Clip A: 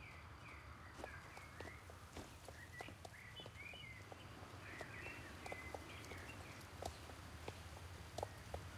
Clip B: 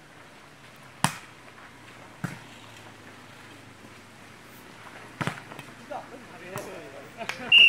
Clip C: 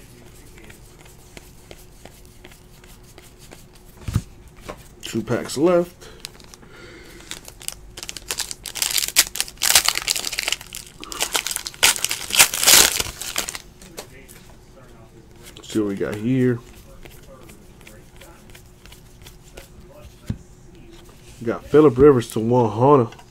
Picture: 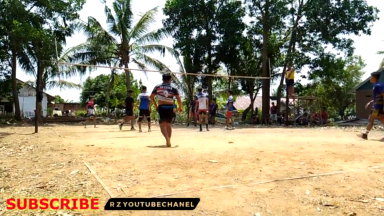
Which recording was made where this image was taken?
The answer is B